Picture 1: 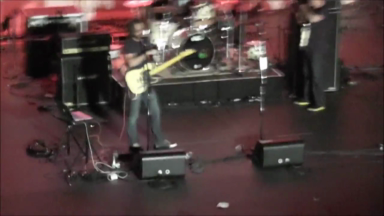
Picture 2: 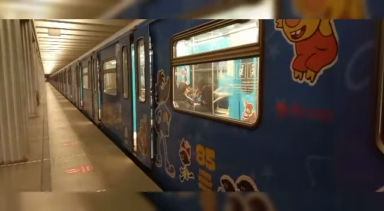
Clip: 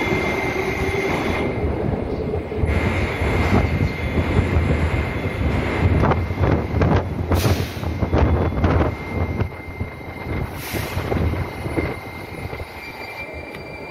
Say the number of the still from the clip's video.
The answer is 2